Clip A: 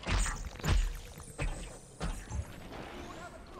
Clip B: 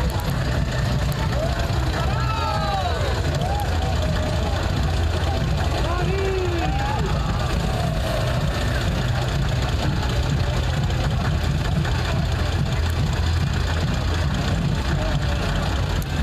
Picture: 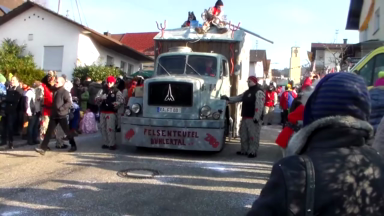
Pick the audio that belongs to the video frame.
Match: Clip B